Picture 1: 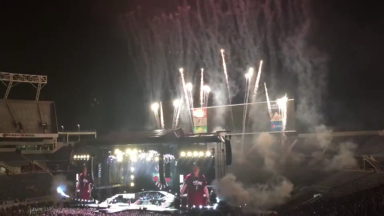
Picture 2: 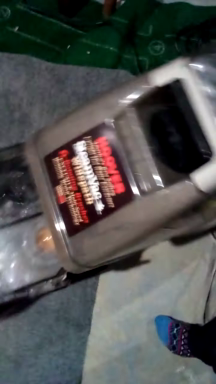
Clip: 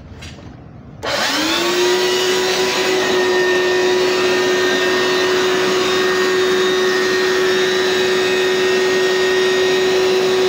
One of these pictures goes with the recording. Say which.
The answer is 2